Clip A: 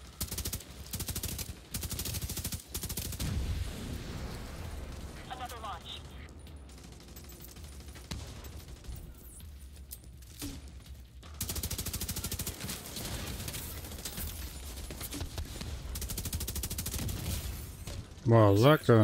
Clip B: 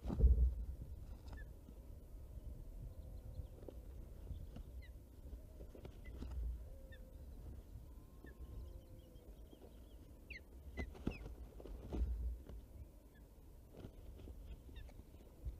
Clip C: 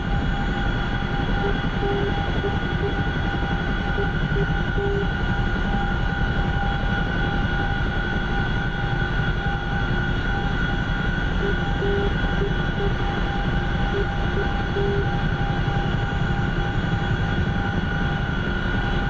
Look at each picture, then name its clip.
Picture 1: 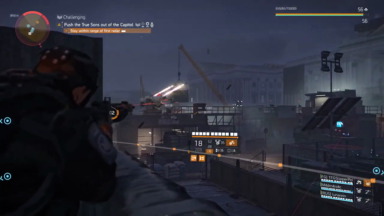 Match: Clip A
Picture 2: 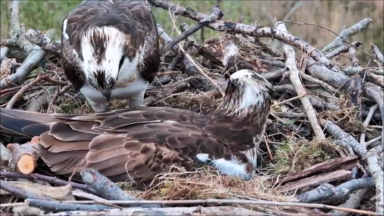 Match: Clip B